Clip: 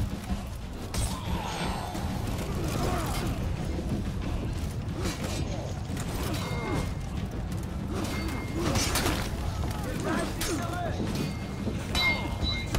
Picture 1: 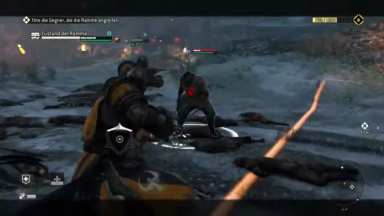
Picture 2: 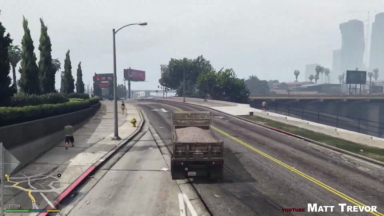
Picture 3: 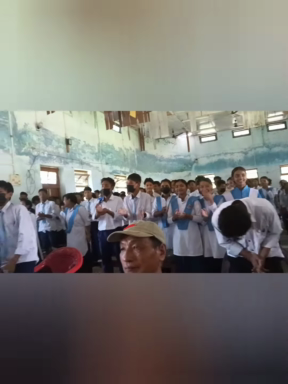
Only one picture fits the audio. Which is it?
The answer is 1